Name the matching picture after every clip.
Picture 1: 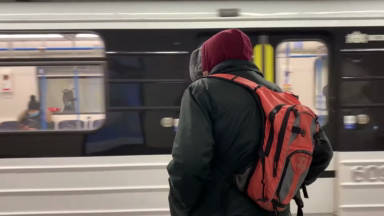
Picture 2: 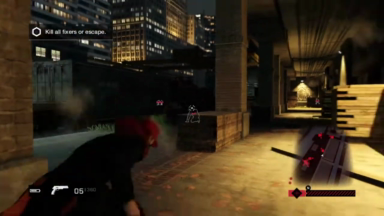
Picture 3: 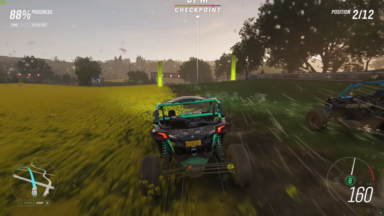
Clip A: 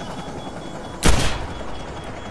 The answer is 2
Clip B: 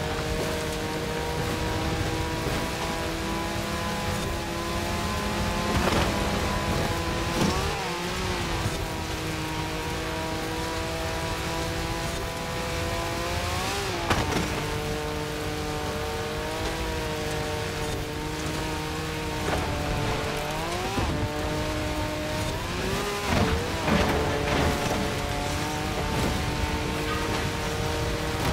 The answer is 3